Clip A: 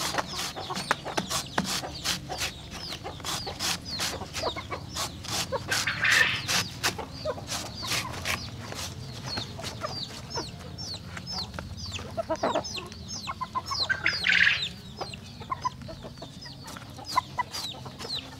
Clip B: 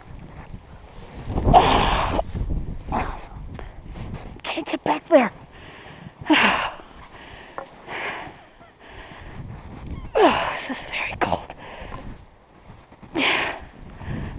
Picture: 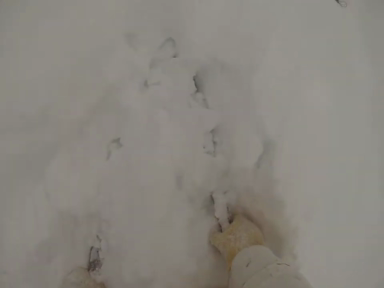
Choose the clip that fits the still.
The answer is B